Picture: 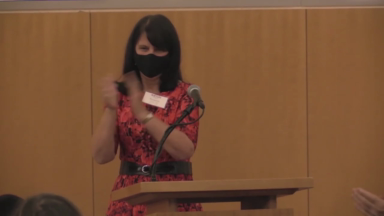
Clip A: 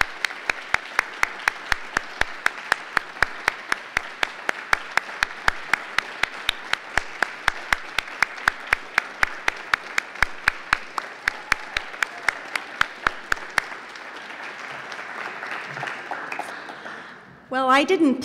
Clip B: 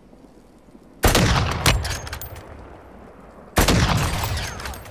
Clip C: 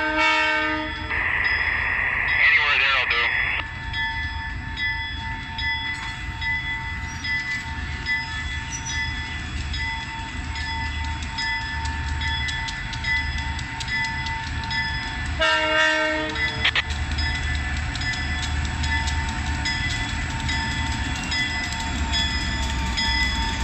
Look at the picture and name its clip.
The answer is A